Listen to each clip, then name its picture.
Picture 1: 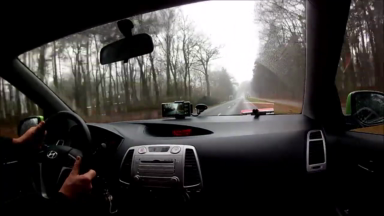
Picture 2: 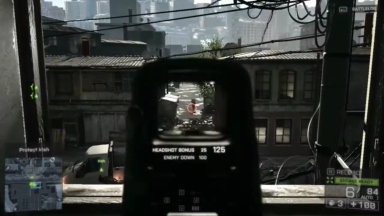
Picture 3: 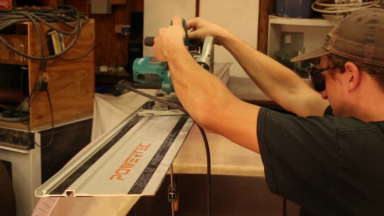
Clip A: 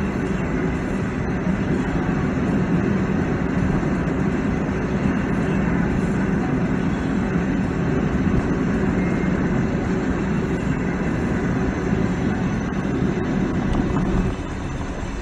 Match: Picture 1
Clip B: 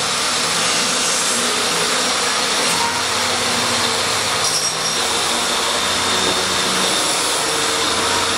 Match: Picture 3